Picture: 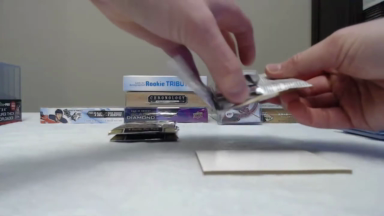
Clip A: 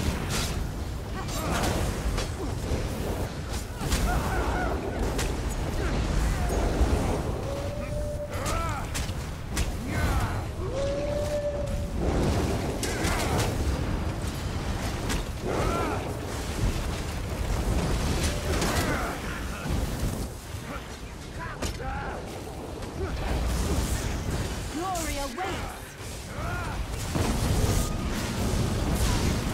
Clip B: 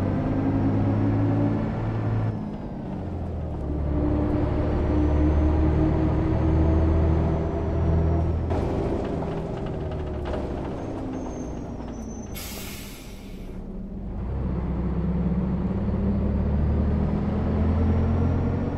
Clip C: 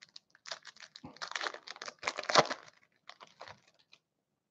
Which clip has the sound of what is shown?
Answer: C